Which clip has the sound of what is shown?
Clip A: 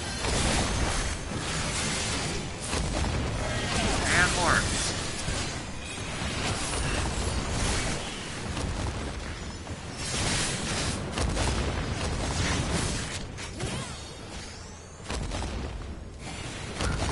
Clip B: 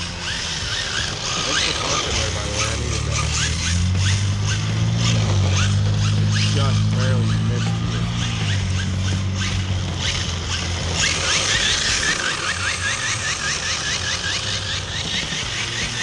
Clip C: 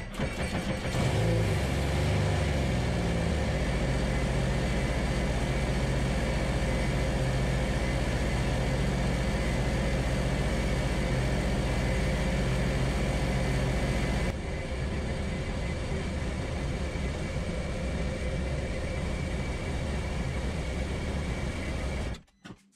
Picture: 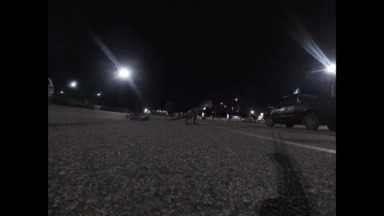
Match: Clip B